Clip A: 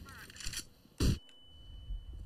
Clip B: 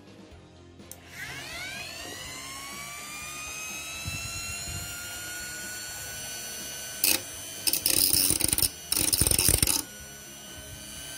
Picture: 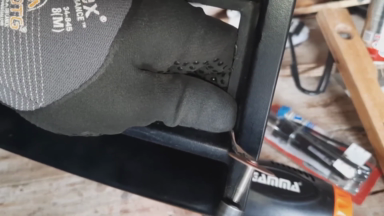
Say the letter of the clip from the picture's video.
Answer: B